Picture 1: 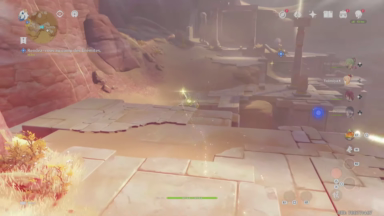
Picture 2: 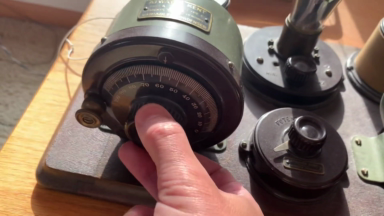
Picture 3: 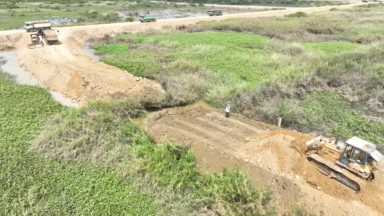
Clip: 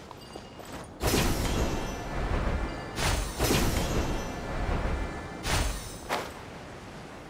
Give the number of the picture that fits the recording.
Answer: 1